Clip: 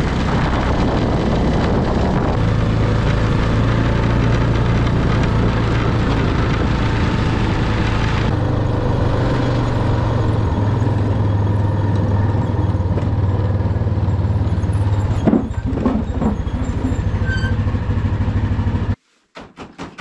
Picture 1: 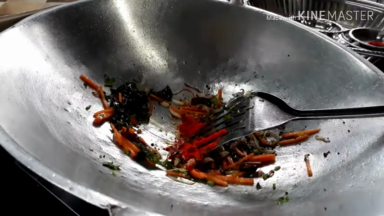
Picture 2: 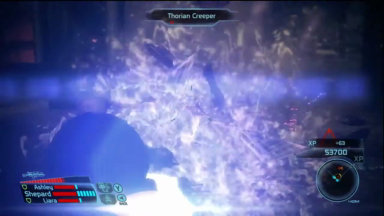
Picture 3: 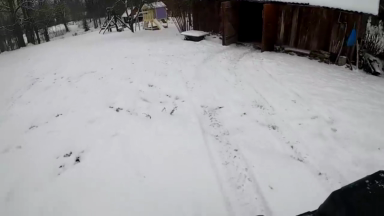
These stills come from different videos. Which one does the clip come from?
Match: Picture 3